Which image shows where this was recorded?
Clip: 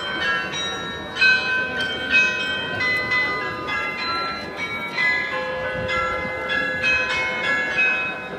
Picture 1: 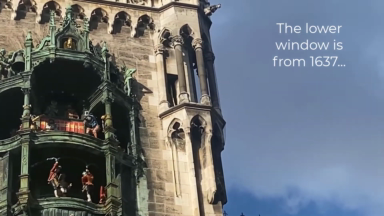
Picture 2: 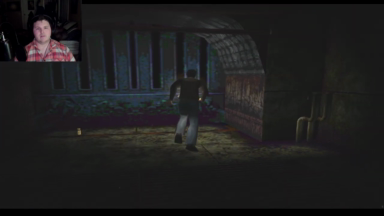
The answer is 1